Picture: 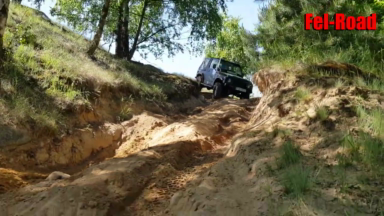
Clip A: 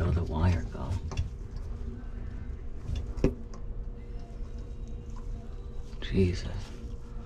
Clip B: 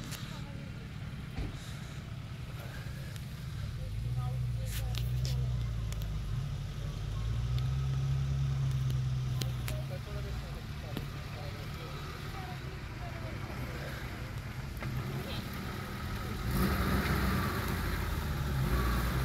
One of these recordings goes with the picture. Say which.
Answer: B